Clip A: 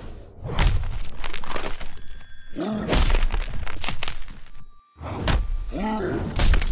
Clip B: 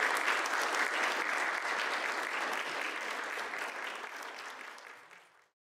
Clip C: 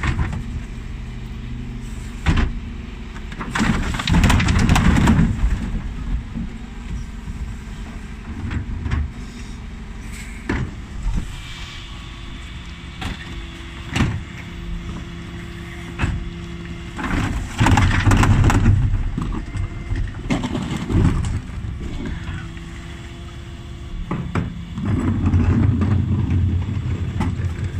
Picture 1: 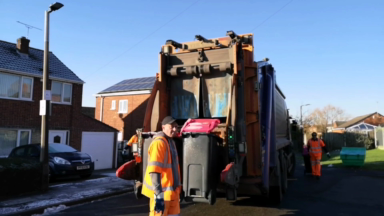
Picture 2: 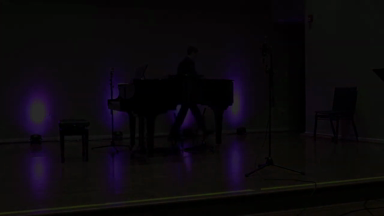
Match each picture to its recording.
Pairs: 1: C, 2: B